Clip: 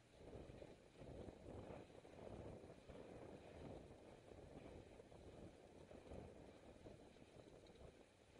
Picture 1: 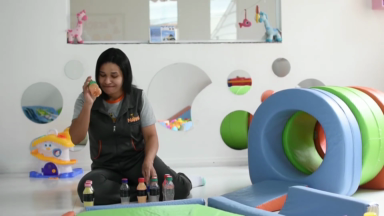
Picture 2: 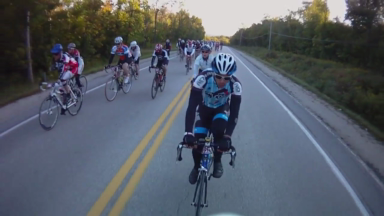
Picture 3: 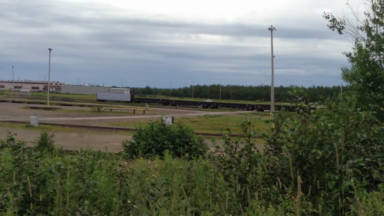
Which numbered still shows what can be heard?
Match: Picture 2